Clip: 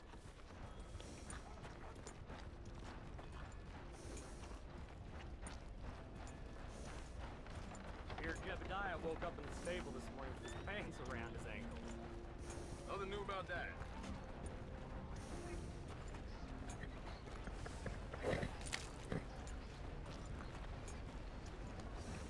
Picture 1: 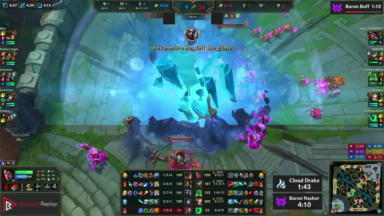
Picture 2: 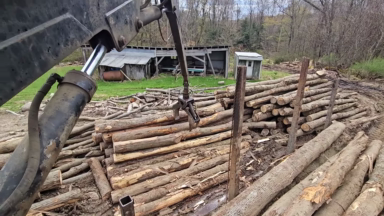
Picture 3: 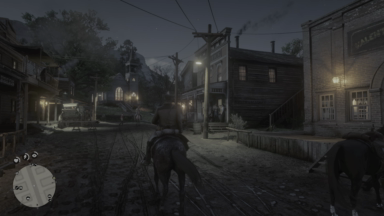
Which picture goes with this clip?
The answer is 3